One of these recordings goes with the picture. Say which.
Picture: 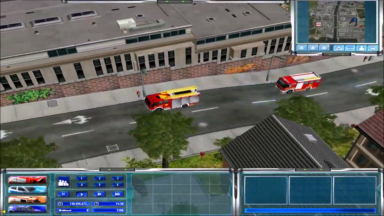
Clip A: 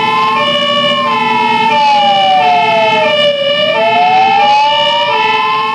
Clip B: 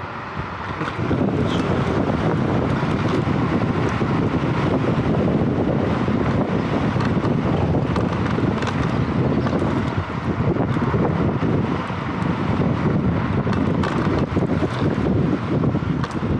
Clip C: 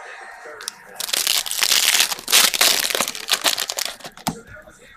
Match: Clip A